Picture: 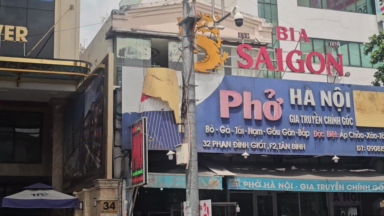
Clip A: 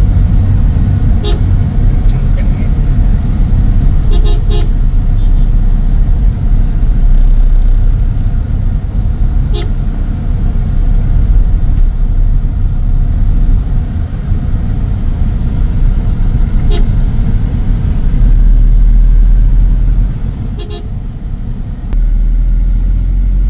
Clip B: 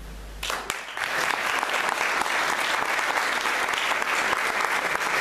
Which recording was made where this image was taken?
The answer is A